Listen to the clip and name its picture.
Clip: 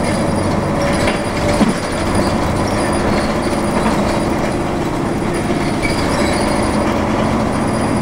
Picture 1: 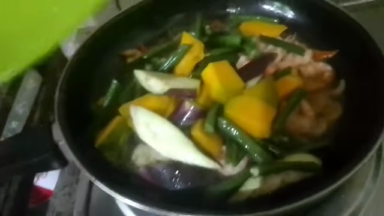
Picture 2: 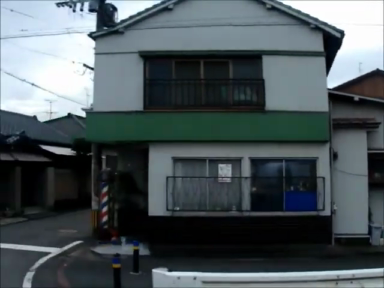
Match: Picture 2